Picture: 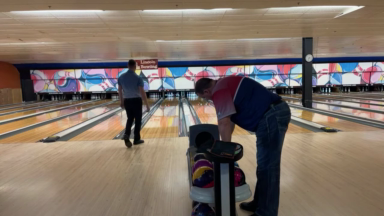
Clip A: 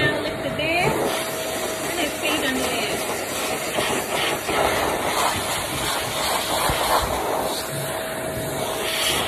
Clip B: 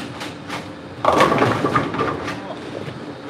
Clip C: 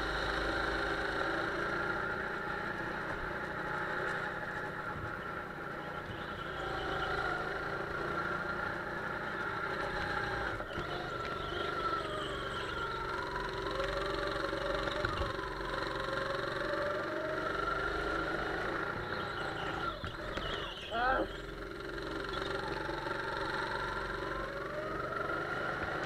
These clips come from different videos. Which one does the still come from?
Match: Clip B